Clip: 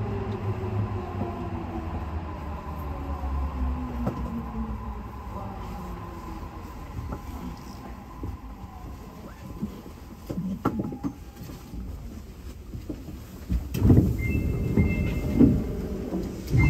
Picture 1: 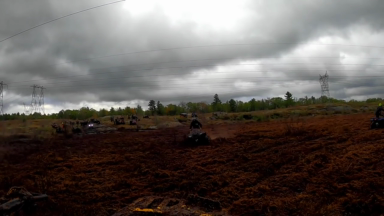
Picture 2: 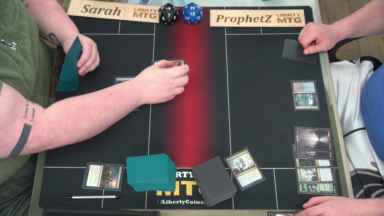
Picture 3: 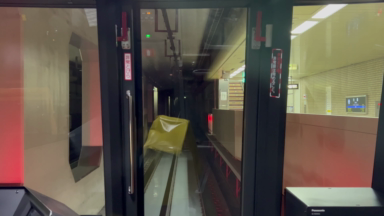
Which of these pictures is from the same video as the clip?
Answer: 3